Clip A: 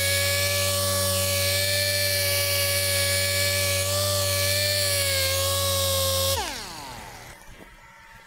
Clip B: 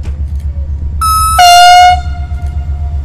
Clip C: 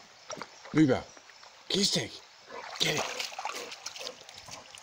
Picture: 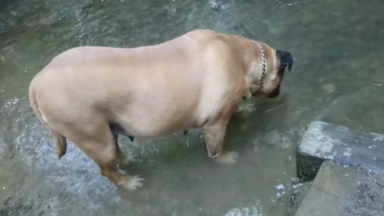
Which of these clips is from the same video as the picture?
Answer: C